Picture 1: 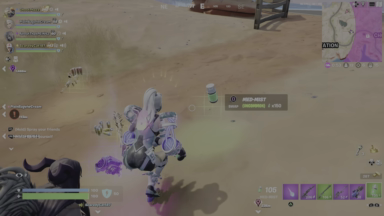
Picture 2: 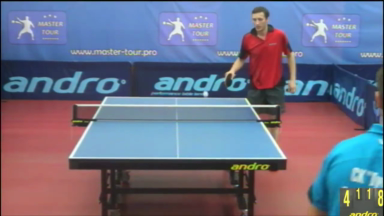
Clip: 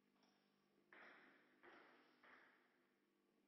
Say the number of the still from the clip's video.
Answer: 2